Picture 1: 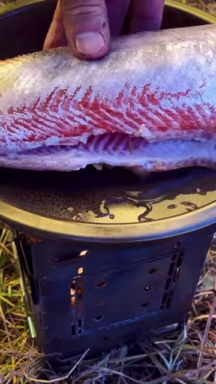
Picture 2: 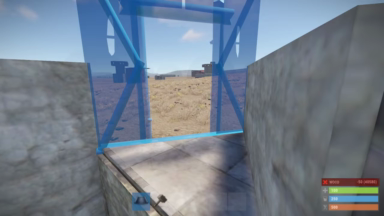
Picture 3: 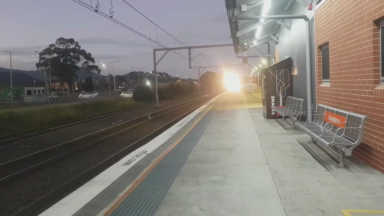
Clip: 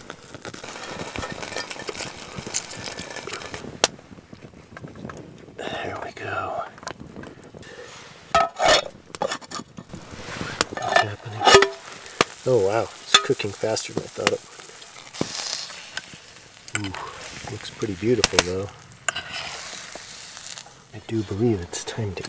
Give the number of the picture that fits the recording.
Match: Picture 1